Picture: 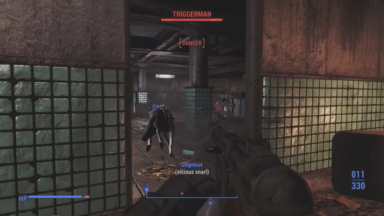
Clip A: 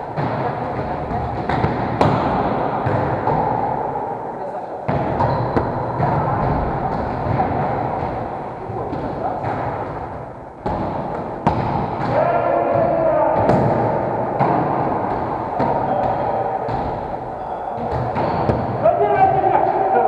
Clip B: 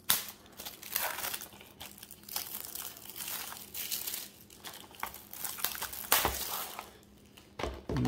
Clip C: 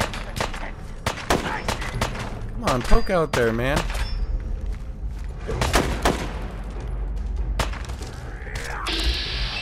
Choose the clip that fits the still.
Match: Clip C